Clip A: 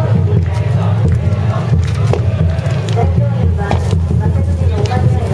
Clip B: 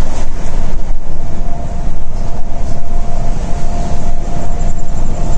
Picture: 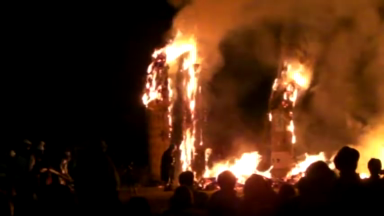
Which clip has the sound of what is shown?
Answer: A